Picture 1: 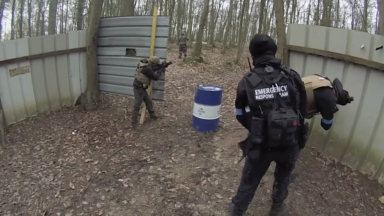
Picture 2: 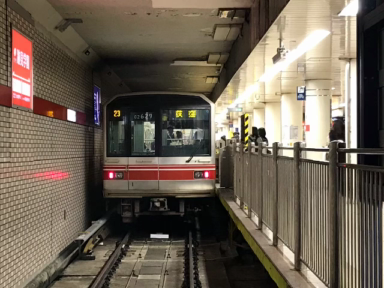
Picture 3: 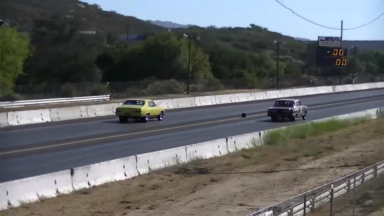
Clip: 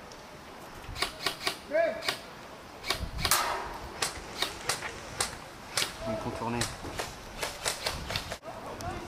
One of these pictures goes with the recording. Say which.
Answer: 1